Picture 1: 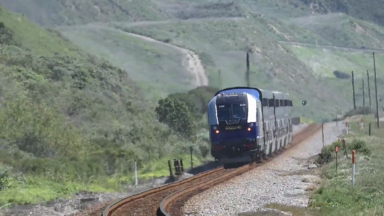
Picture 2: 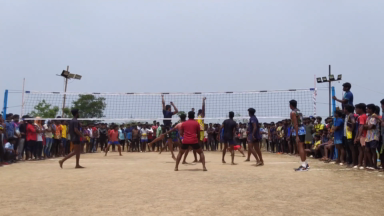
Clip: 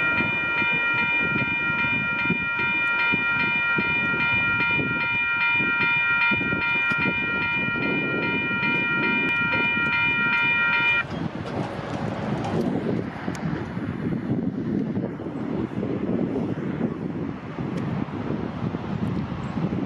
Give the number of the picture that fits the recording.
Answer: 1